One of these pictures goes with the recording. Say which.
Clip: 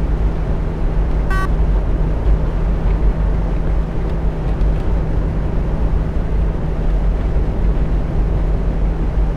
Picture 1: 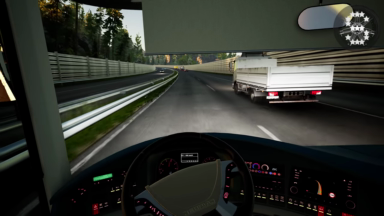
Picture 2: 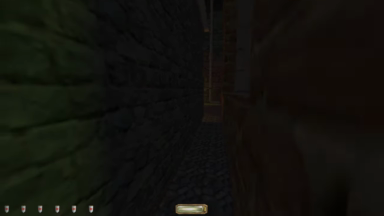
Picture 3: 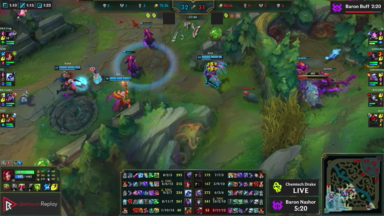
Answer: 1